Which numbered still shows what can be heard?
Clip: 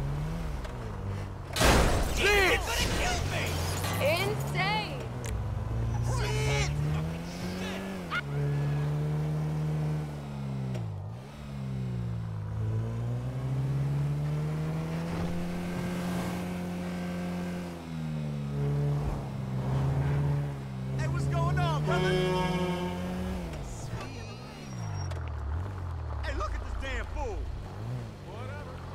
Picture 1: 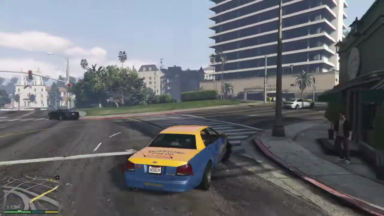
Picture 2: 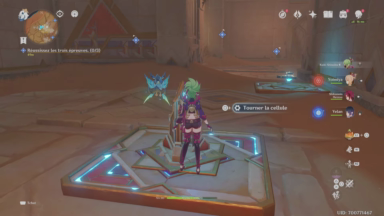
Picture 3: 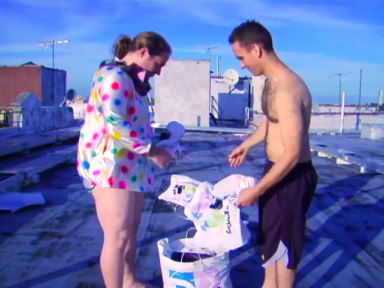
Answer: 1